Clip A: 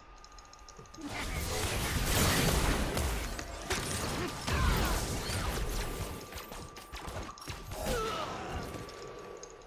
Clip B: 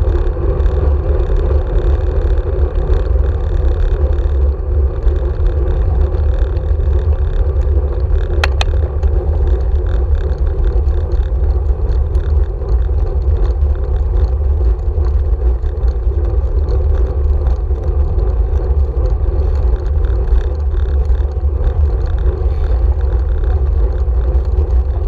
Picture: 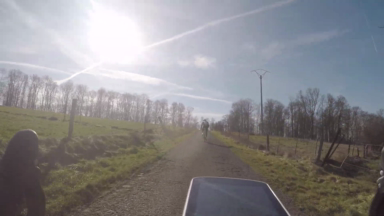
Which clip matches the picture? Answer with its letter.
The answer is B